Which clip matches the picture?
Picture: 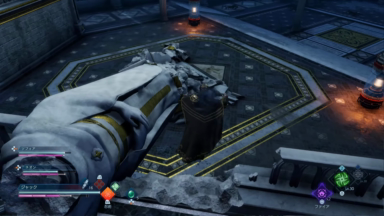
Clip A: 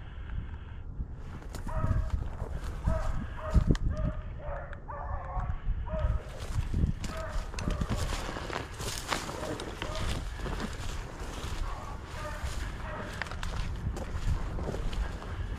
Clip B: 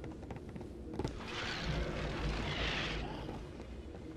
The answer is B